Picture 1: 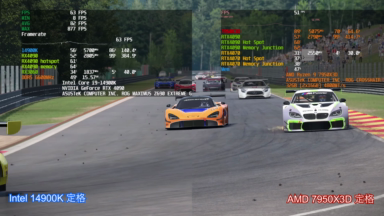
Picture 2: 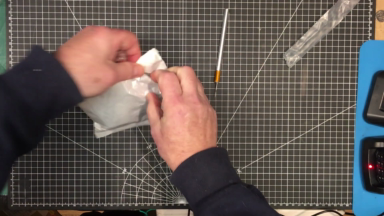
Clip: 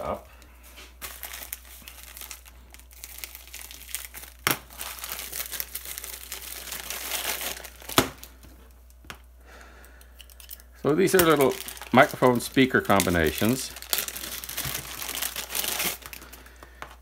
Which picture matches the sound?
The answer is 2